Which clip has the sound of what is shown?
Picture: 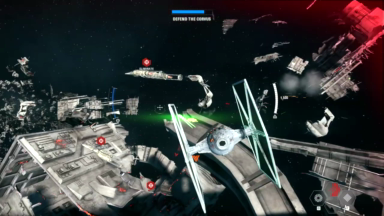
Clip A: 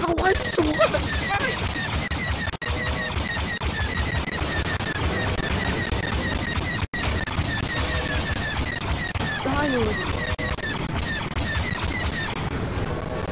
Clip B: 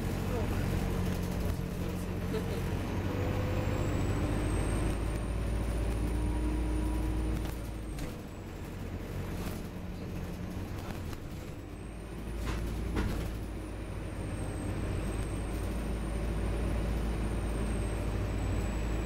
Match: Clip A